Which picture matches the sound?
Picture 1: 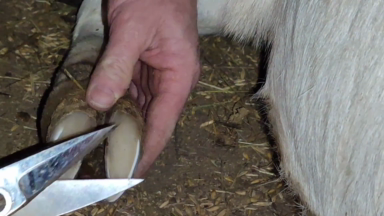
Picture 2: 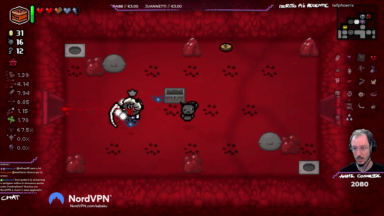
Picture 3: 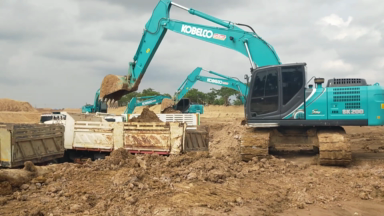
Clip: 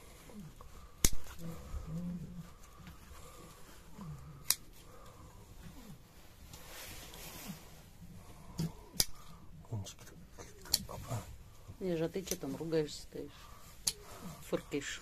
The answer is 1